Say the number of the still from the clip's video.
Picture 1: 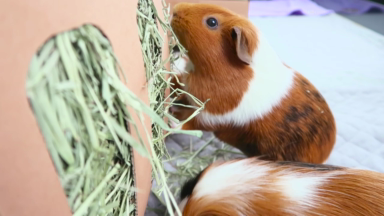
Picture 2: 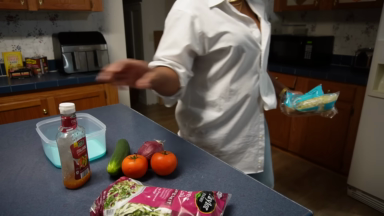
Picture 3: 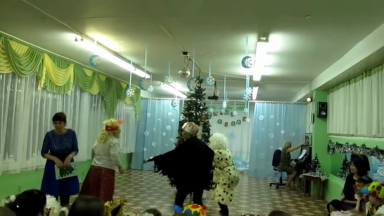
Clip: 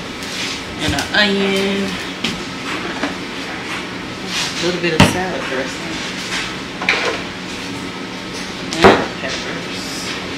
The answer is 2